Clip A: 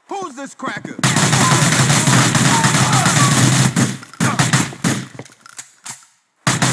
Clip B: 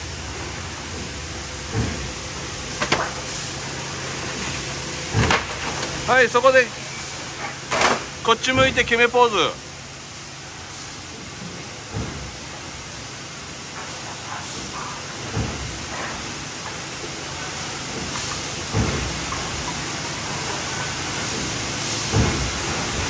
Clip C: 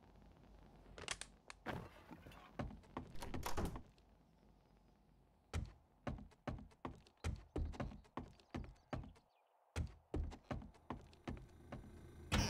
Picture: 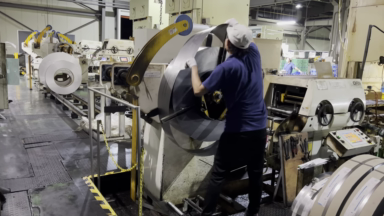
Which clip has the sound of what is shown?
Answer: B